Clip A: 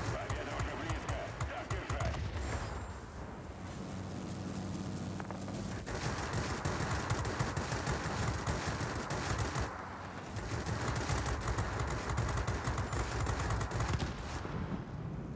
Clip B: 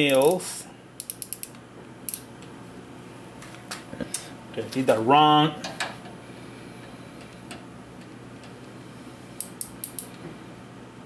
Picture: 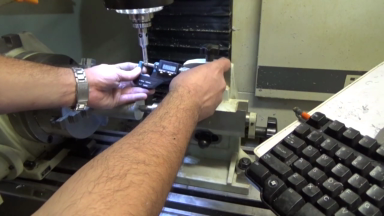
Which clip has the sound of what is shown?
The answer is B